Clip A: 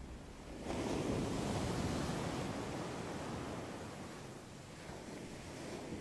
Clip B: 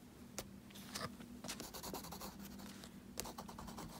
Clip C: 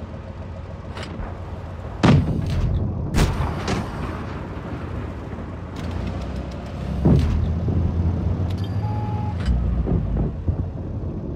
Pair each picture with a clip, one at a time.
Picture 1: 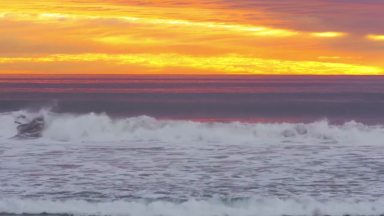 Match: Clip A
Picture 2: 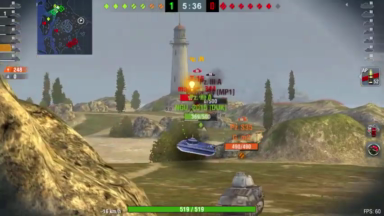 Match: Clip C